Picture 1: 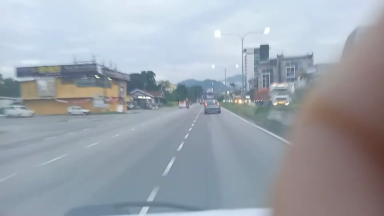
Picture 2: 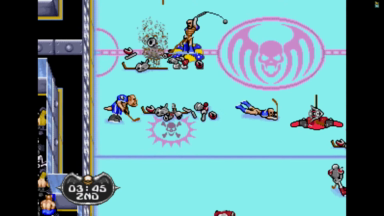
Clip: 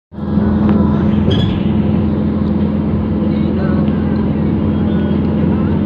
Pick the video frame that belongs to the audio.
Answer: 1